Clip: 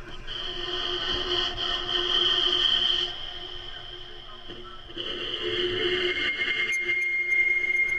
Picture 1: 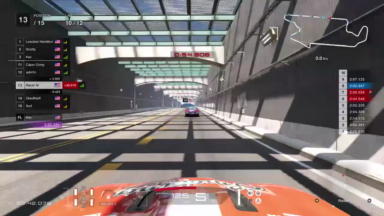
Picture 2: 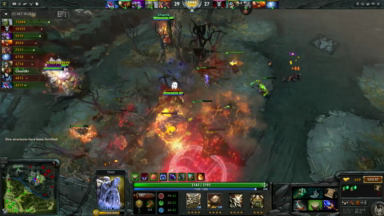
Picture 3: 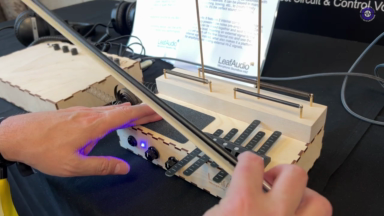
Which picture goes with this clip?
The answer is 3